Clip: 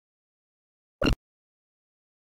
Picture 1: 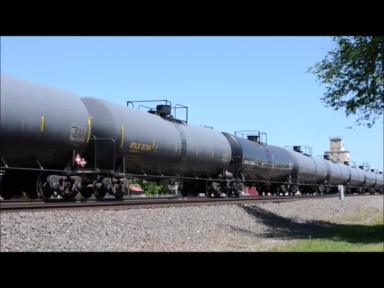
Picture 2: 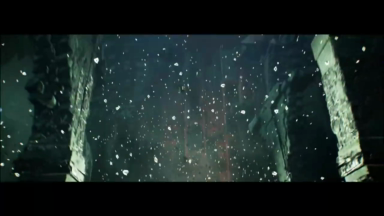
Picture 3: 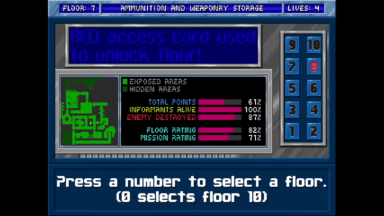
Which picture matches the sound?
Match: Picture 3